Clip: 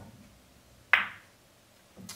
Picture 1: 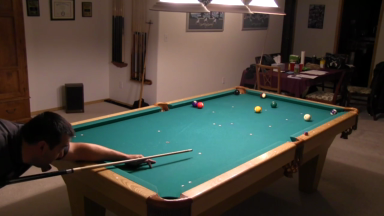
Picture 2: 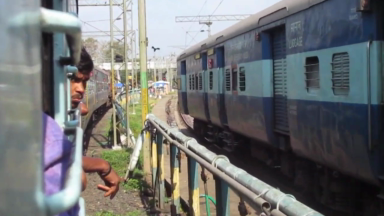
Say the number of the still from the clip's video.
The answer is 1